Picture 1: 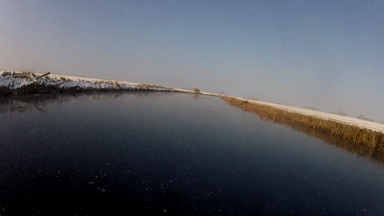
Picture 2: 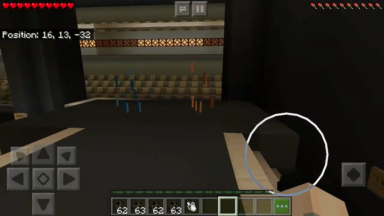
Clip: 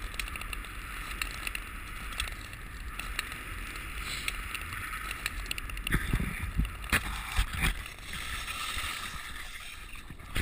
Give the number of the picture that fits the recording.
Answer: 1